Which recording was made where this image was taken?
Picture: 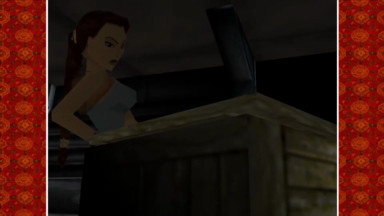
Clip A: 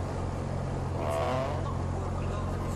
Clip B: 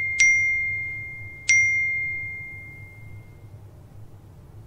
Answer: A